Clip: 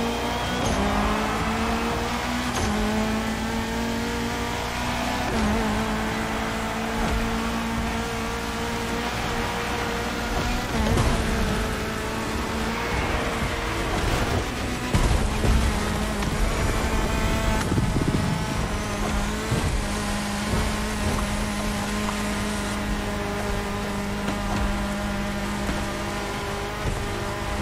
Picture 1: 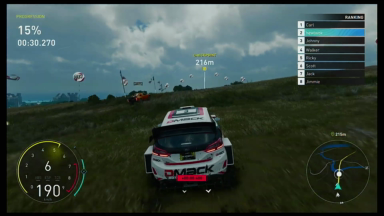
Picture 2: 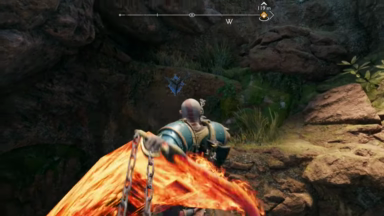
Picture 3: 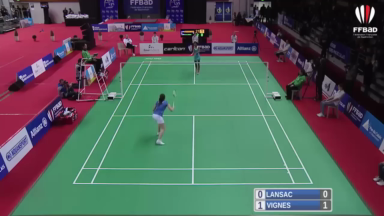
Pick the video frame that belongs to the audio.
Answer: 1